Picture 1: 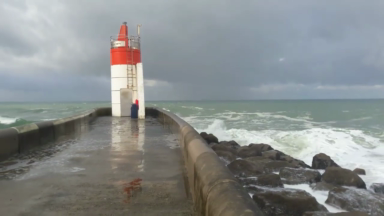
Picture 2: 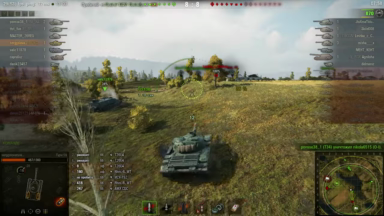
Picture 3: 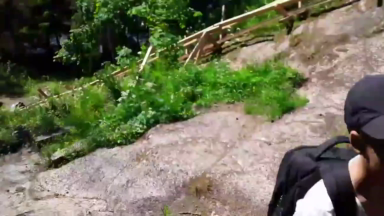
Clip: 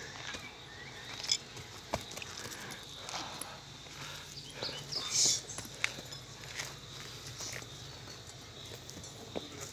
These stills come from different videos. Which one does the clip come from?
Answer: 3